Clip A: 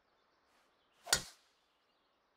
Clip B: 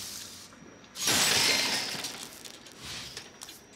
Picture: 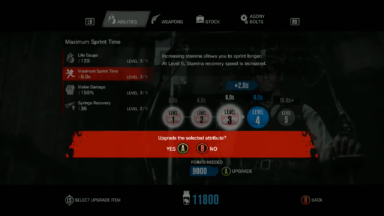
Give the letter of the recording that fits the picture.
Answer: B